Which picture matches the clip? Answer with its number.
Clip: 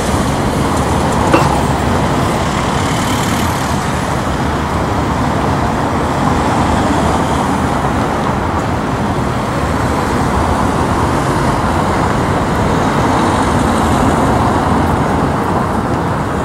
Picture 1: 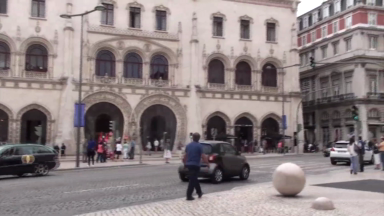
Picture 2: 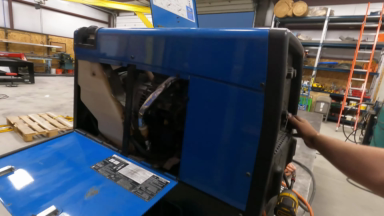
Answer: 1